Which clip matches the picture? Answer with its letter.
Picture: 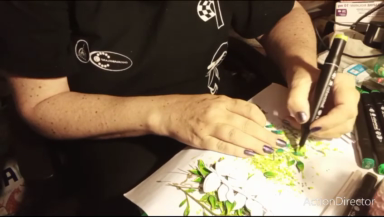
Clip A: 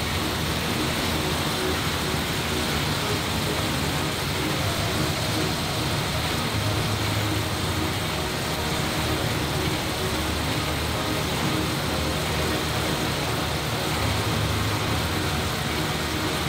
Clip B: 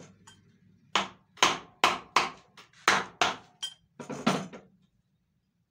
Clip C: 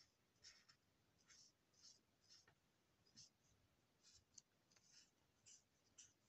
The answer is C